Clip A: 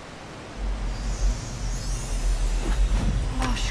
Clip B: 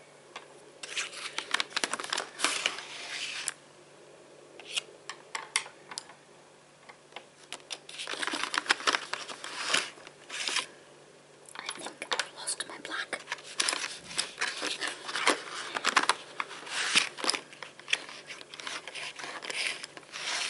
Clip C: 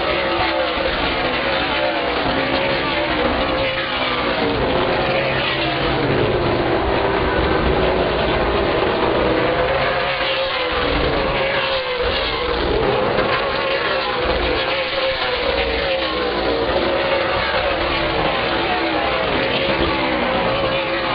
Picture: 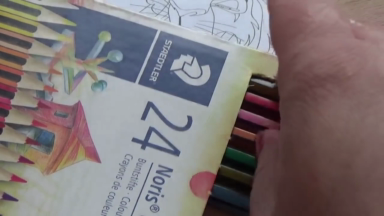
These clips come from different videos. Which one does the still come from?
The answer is B